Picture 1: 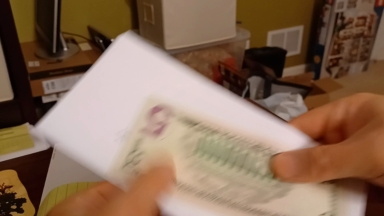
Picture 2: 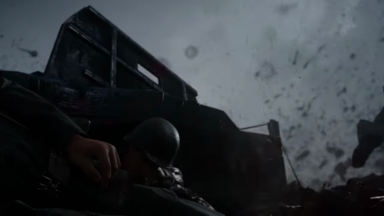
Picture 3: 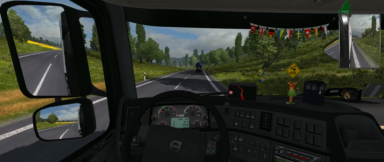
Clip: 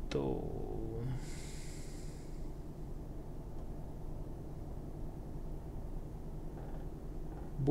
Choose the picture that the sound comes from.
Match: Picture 3